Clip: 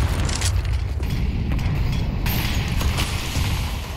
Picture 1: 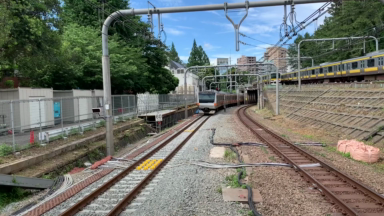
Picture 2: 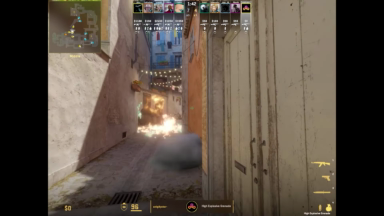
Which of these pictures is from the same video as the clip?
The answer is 2